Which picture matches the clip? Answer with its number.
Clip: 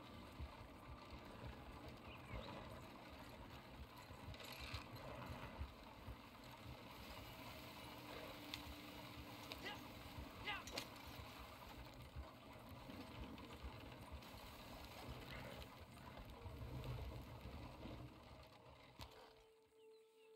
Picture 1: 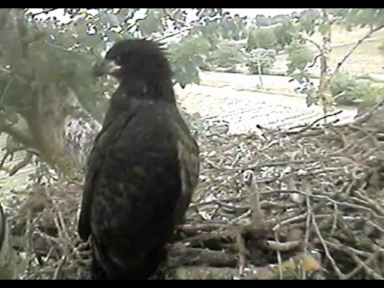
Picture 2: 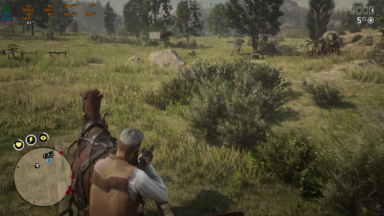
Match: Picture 2